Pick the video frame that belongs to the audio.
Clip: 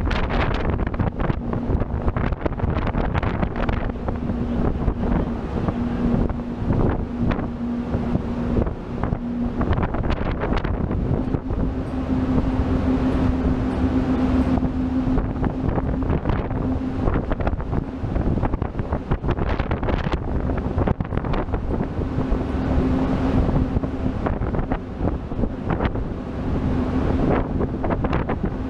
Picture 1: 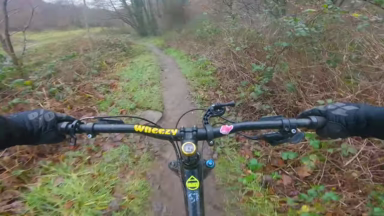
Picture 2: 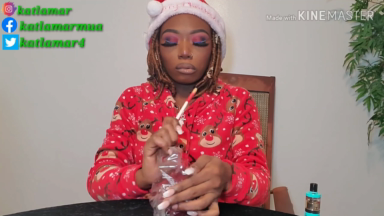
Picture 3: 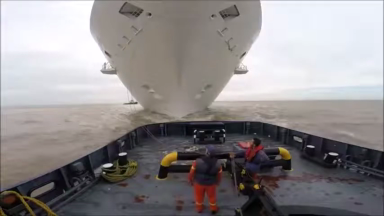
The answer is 3